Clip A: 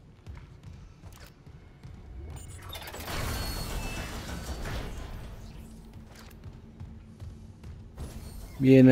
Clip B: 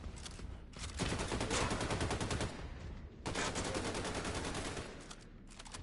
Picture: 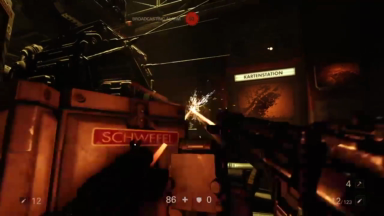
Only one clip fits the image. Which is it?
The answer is B